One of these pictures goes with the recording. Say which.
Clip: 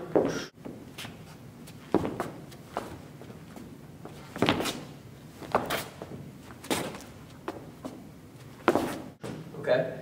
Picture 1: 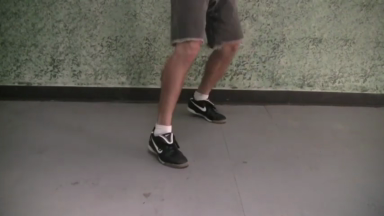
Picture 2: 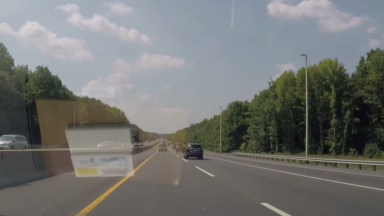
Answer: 1